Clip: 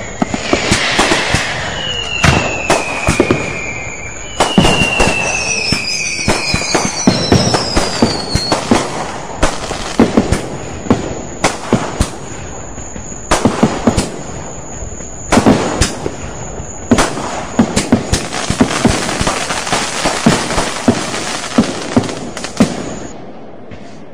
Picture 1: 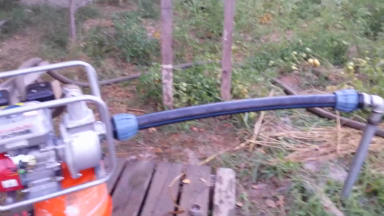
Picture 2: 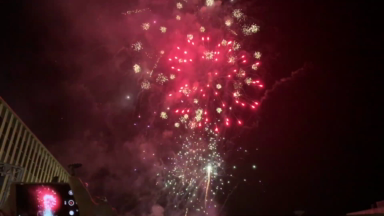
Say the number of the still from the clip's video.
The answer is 2